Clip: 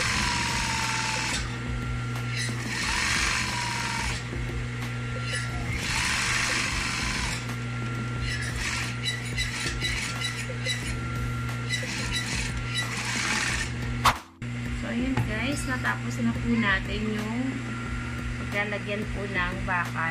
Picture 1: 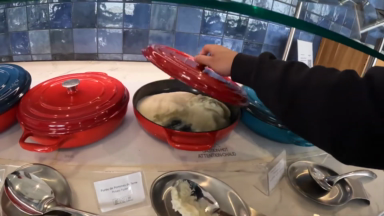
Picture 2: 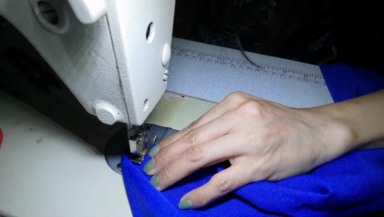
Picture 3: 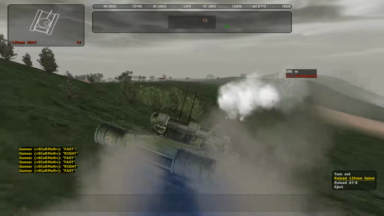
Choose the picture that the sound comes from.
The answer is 2